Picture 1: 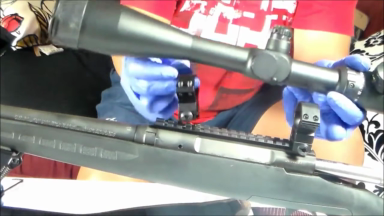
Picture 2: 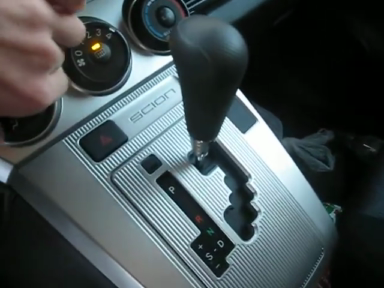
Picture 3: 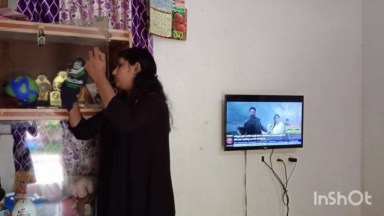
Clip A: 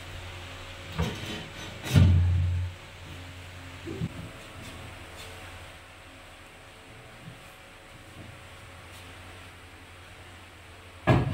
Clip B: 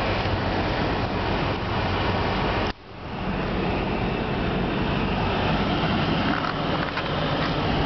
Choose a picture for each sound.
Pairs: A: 3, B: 2